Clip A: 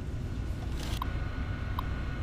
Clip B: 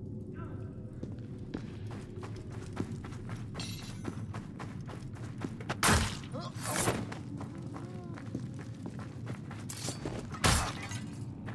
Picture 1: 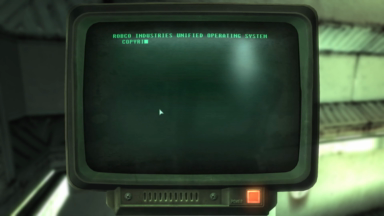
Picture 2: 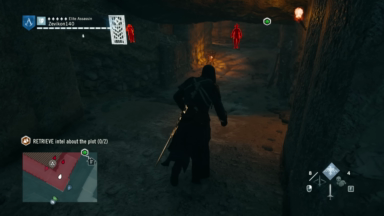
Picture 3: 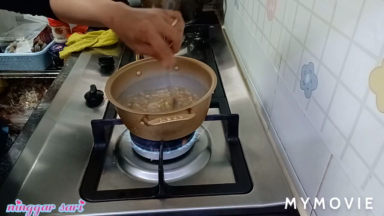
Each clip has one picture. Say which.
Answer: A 1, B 2